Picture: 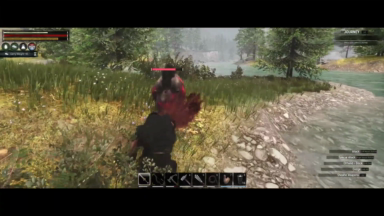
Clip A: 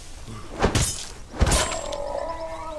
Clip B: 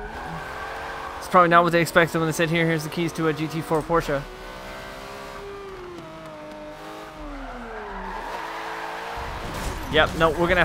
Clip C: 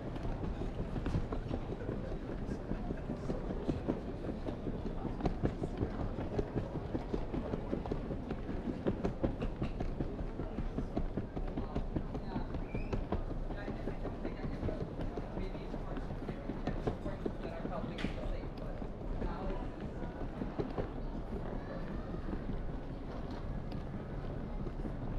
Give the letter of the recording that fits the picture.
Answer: A